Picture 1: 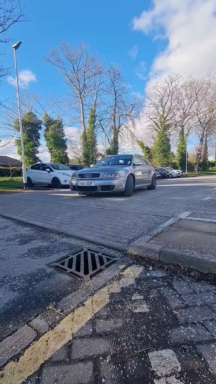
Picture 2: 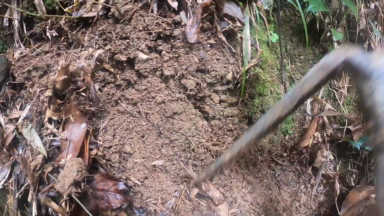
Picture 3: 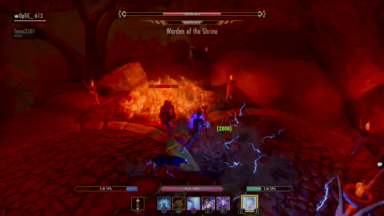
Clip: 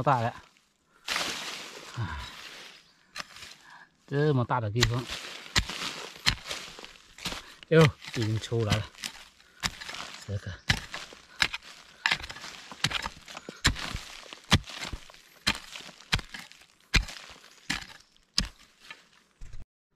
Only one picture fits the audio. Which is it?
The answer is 2